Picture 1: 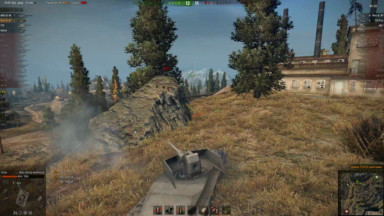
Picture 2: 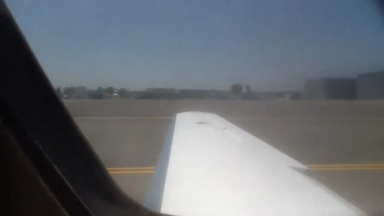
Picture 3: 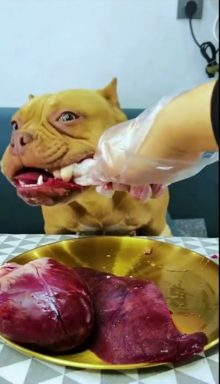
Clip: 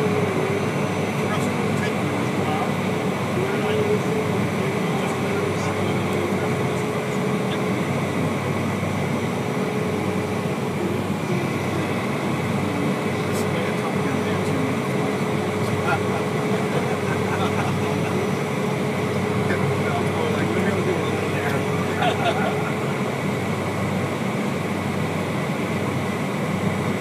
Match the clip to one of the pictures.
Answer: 2